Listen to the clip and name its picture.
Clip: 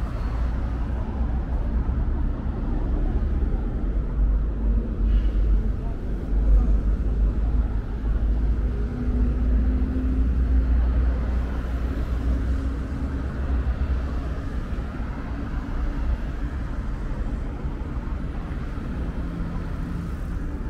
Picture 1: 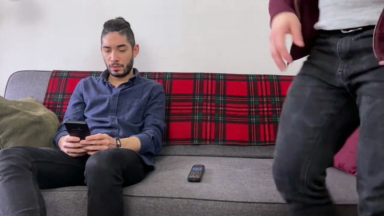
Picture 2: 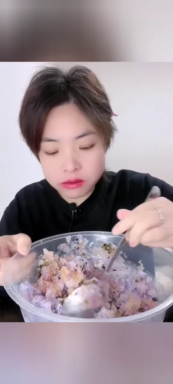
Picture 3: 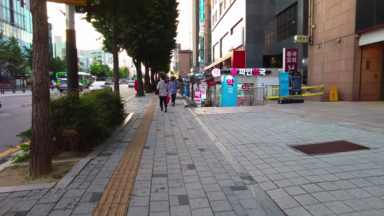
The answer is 3